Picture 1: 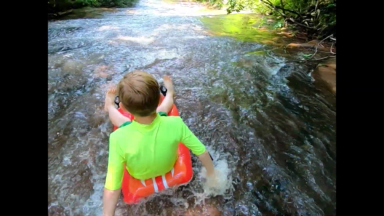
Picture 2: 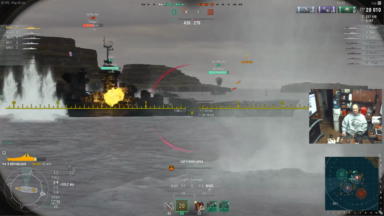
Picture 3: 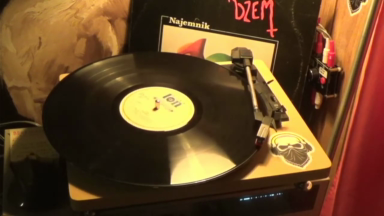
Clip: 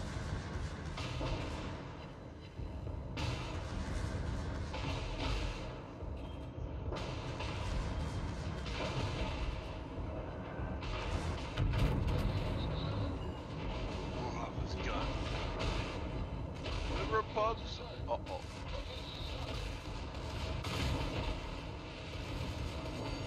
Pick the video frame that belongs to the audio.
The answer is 2